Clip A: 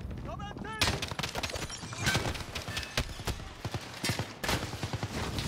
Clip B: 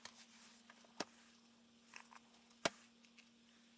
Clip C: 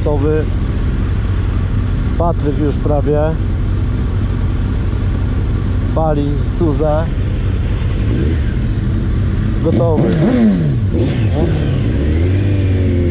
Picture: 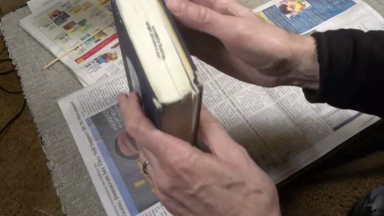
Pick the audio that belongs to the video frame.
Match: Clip B